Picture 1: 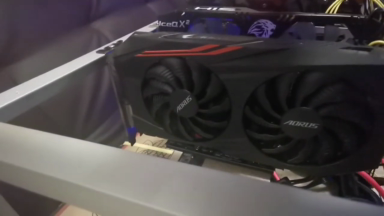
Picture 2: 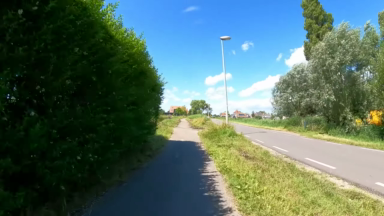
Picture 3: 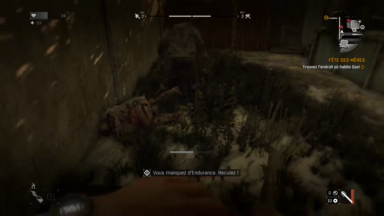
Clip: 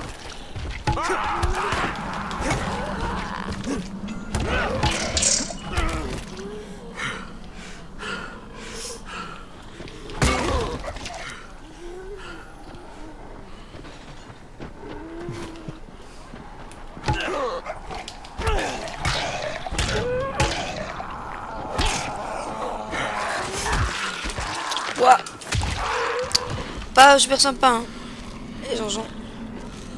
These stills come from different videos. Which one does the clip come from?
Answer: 3